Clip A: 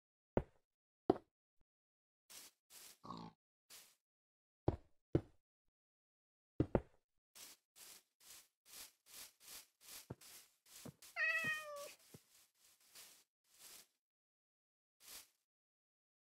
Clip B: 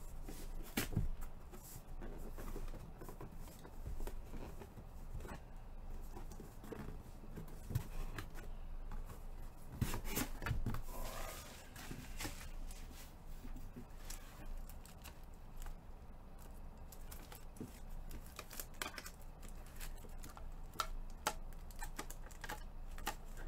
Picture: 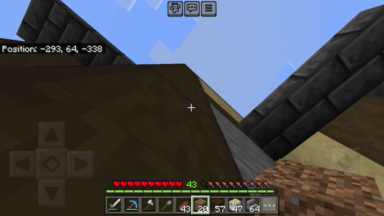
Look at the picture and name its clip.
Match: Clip A